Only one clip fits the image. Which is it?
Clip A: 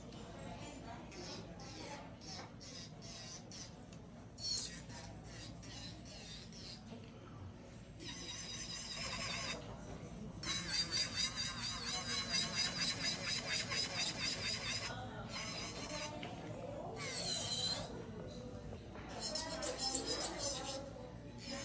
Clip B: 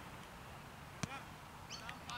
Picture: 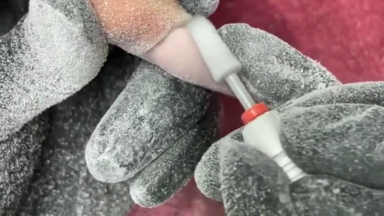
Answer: A